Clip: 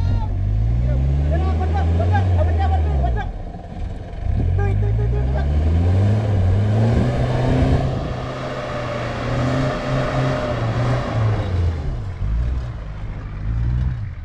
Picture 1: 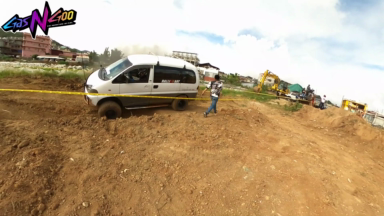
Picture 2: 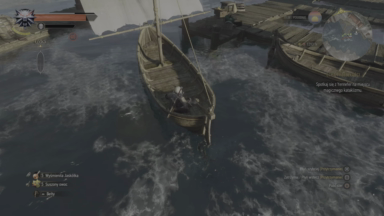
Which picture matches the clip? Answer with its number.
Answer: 1